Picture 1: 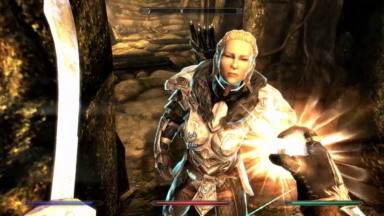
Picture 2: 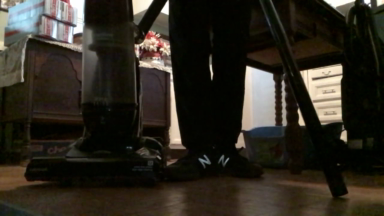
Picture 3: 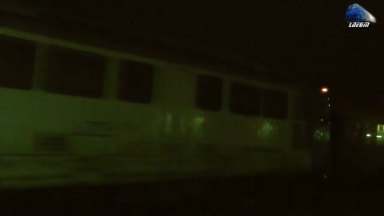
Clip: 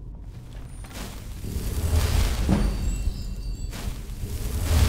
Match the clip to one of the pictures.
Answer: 1